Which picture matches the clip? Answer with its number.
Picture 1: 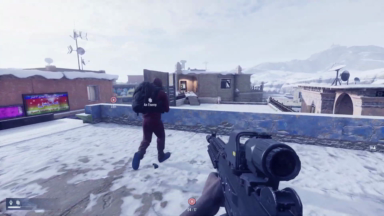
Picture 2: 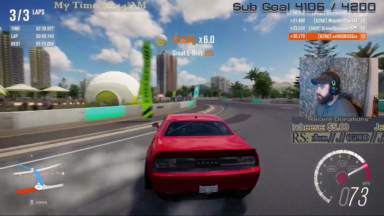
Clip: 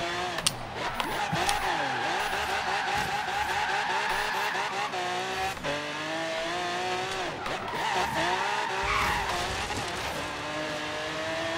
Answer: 2